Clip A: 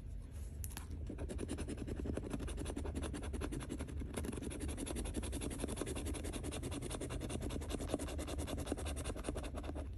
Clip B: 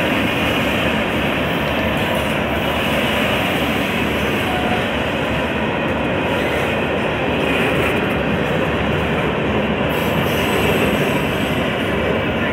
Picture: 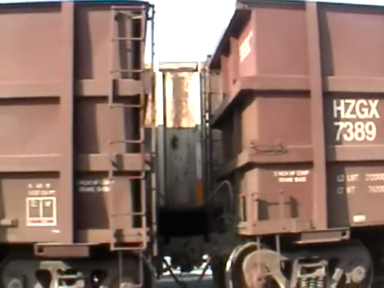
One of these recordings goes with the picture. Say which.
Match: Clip B